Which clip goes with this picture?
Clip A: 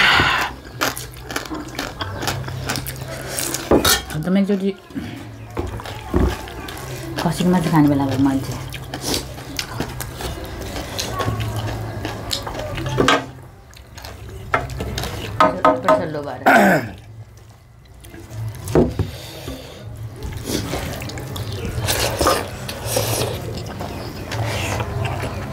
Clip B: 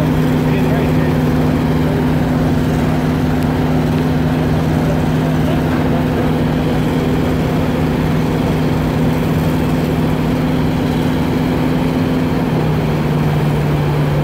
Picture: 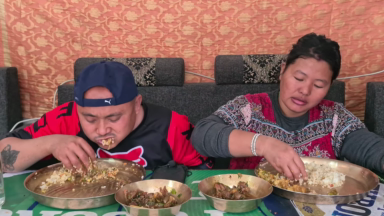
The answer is A